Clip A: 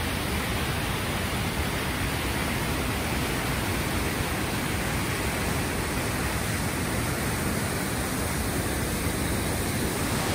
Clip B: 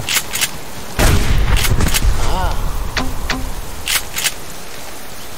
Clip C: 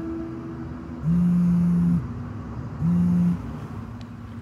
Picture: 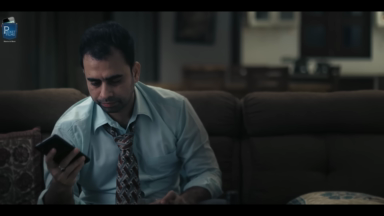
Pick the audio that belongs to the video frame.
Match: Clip C